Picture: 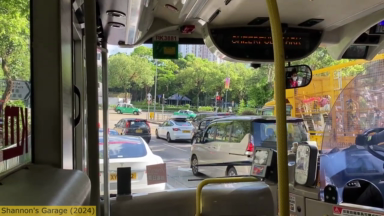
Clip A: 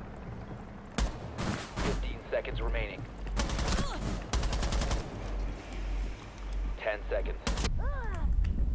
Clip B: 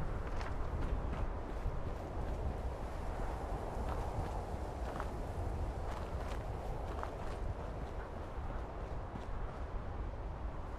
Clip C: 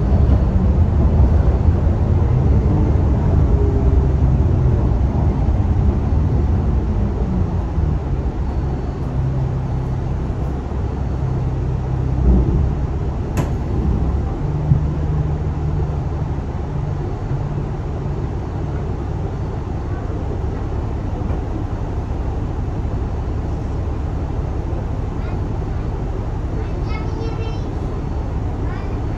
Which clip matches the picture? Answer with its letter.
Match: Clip C